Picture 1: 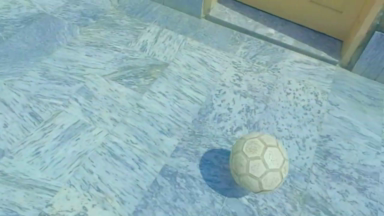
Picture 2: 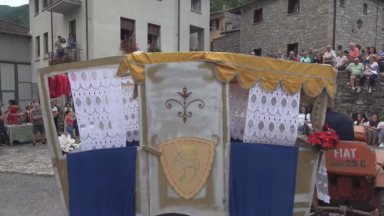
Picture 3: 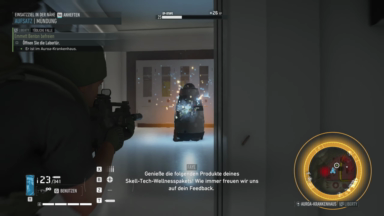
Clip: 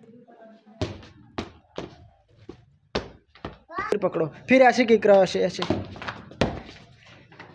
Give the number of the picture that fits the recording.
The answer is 1